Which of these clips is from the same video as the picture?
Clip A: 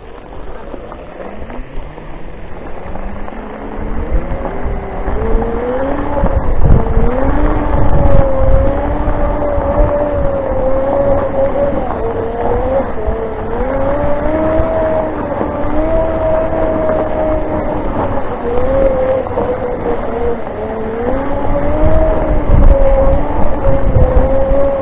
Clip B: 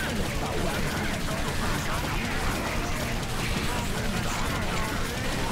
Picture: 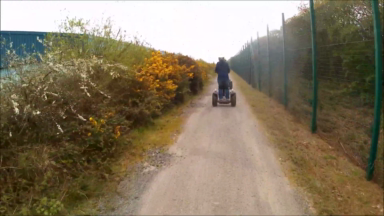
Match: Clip A